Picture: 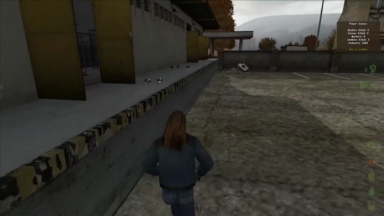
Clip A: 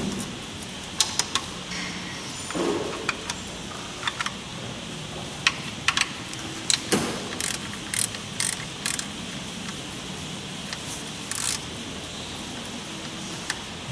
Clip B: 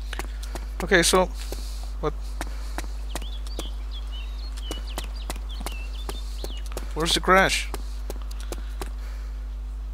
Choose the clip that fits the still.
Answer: B